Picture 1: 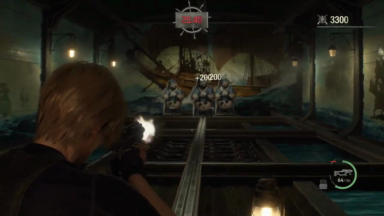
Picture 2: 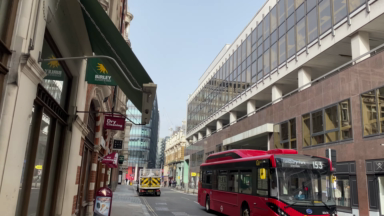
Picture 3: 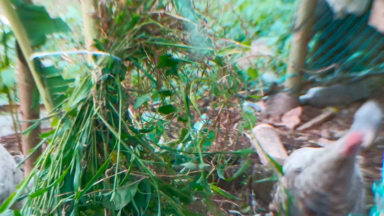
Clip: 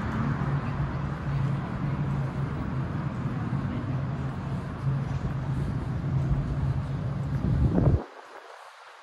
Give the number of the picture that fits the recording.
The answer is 2